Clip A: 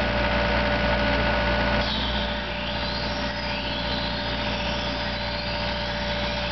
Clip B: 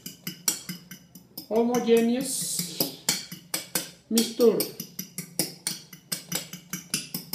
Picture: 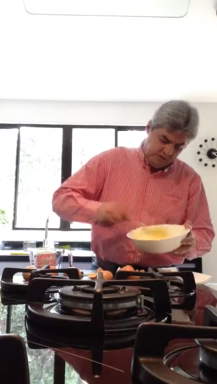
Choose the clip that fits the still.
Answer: B